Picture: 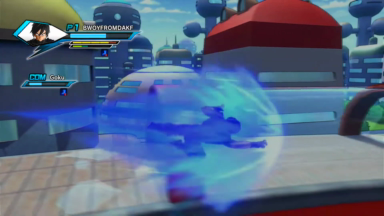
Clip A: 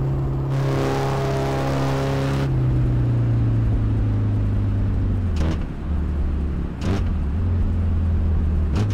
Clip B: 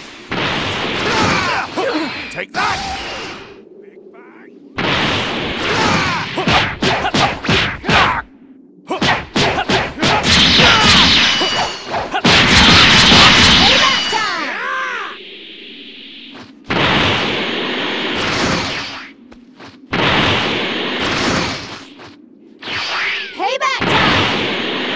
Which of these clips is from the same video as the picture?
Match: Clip B